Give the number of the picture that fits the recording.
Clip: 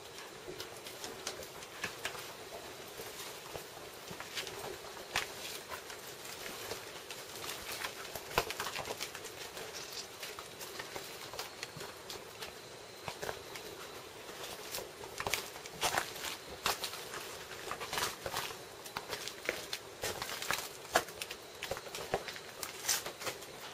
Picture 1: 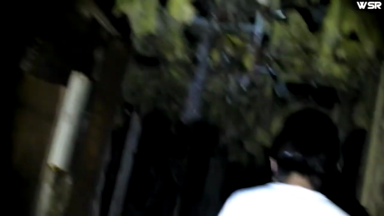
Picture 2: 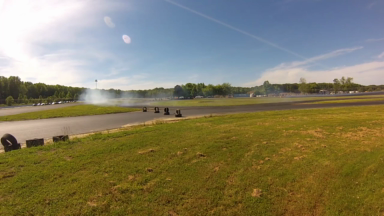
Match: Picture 1